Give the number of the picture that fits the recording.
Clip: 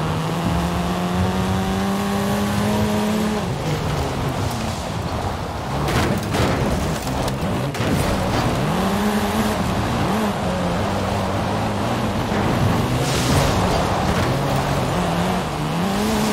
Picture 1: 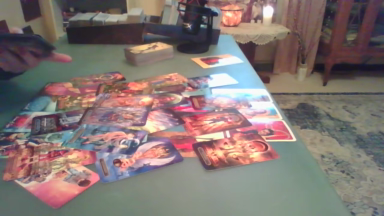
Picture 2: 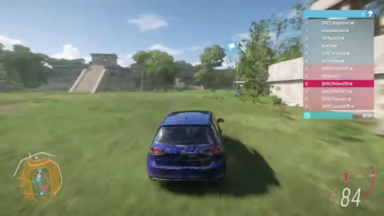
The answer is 2